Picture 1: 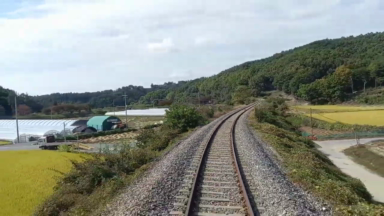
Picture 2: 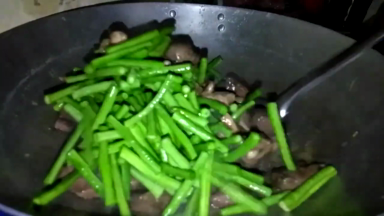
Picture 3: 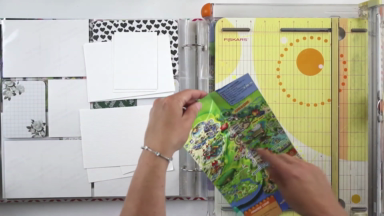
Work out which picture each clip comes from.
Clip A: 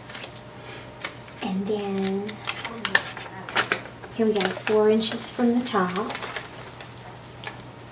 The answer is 3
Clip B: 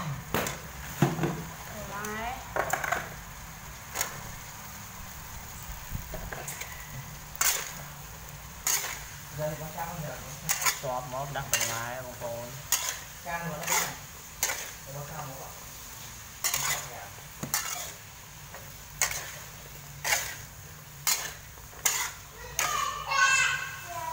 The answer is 2